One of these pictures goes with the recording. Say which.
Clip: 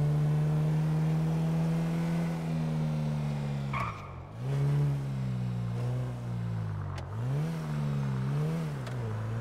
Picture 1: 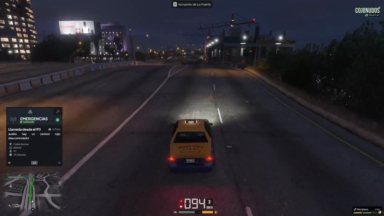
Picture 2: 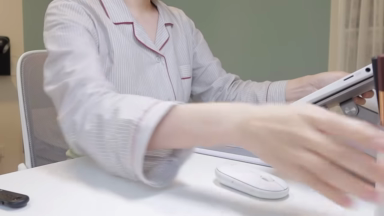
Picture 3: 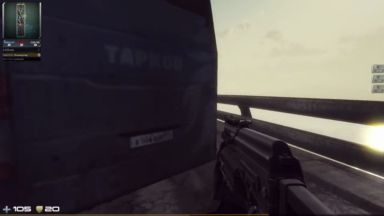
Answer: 1